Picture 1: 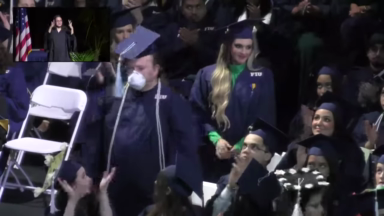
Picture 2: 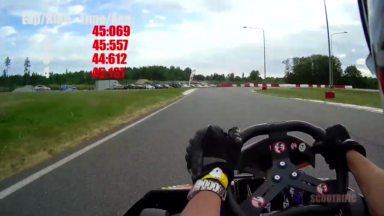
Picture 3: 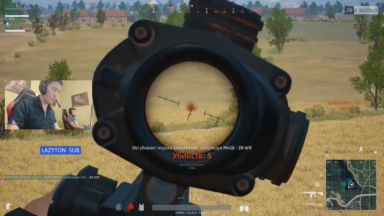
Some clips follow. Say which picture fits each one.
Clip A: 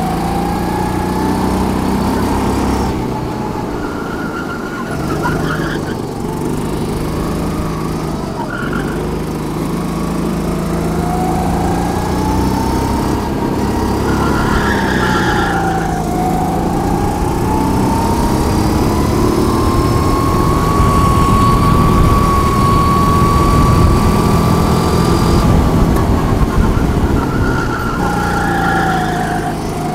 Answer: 2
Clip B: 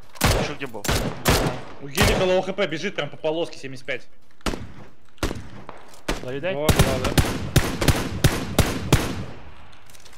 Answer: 3